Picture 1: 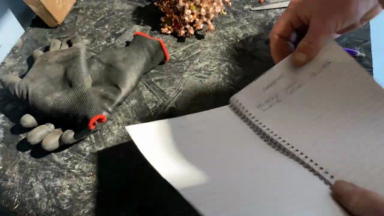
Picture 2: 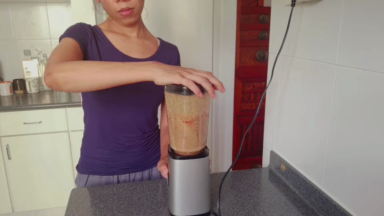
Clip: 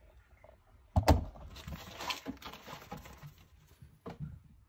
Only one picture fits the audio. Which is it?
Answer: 1